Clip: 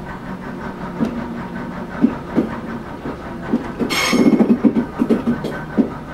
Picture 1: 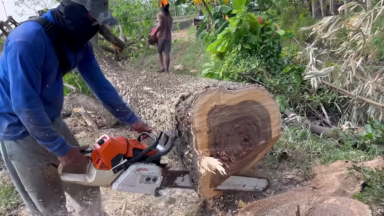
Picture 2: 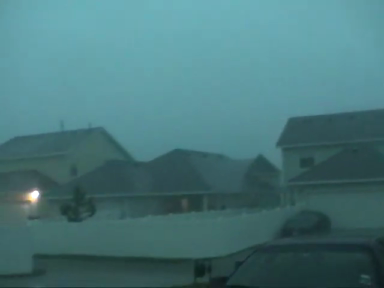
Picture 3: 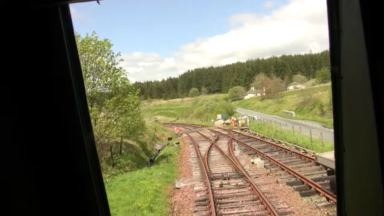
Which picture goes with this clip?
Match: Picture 3